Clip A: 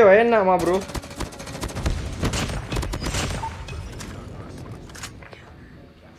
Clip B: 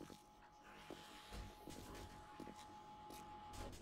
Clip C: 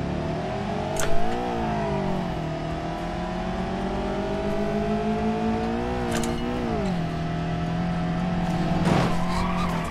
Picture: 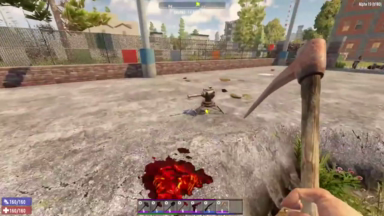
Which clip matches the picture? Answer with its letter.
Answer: B